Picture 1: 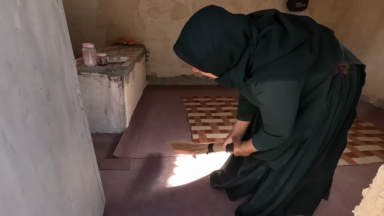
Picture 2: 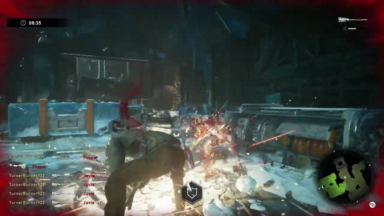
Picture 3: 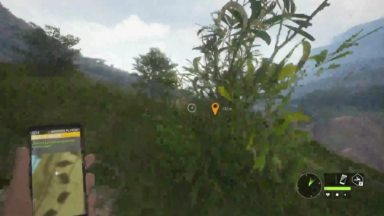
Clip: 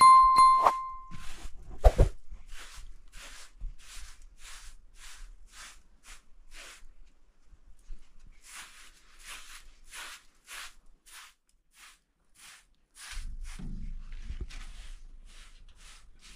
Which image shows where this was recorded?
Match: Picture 1